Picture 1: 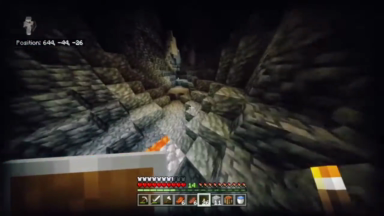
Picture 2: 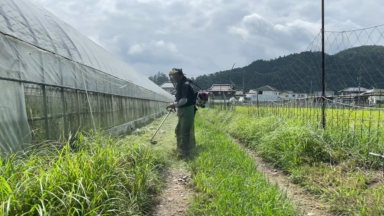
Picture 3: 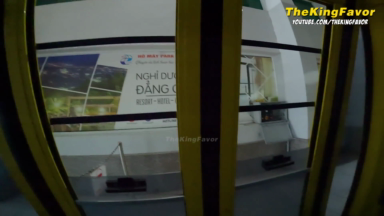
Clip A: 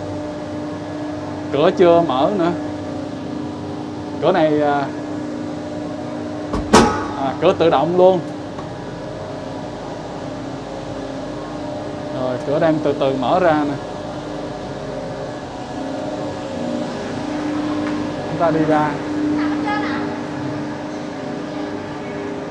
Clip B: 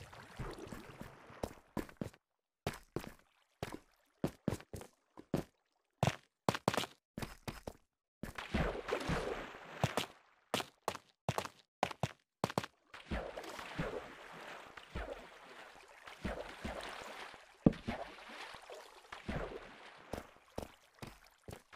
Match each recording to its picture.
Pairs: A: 3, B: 1